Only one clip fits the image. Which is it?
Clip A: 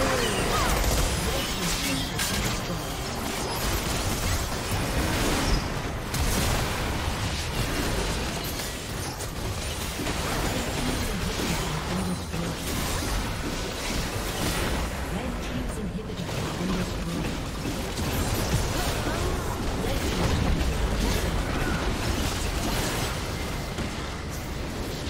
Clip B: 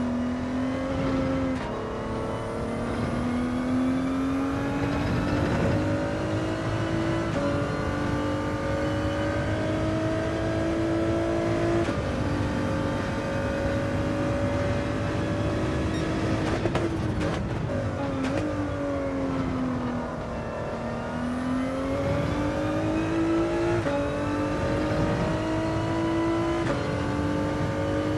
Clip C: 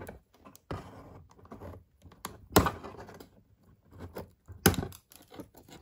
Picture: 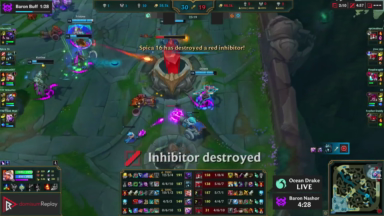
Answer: A